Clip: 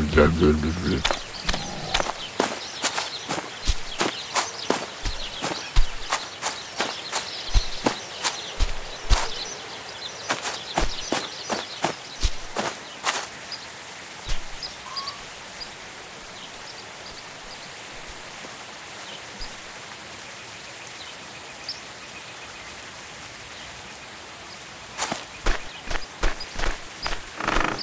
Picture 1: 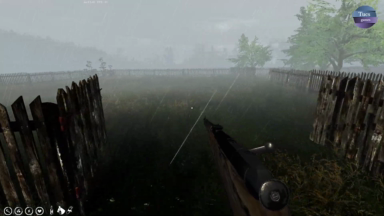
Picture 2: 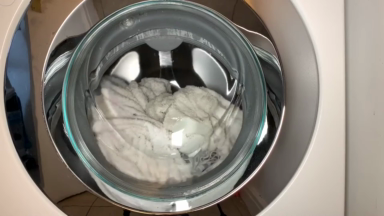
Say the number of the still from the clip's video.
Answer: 1